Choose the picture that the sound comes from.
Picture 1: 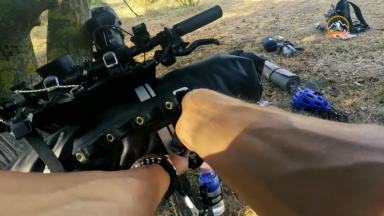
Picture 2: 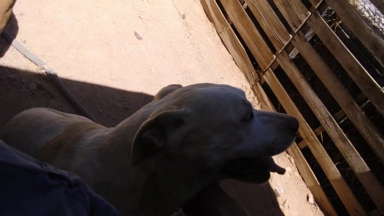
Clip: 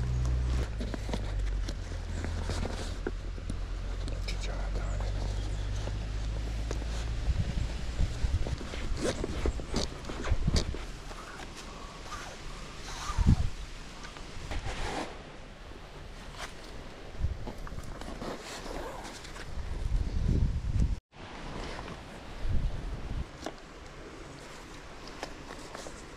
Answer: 1